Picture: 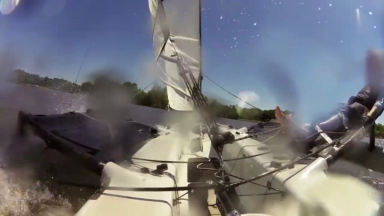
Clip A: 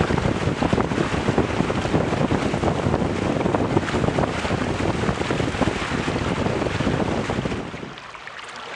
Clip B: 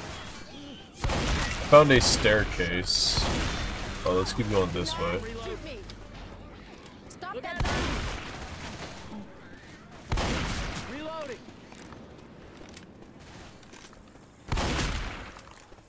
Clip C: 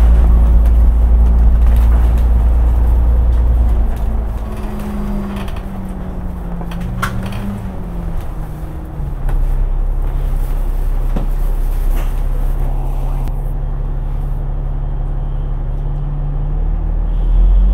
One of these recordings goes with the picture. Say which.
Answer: A